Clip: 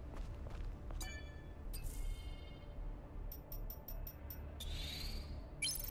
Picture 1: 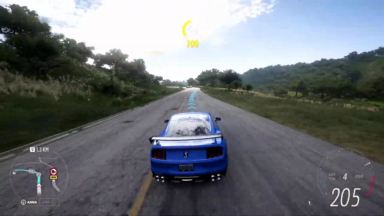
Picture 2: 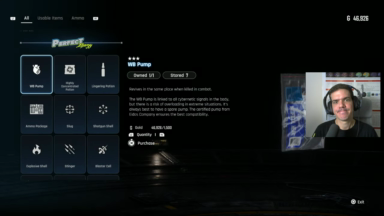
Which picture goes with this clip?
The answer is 2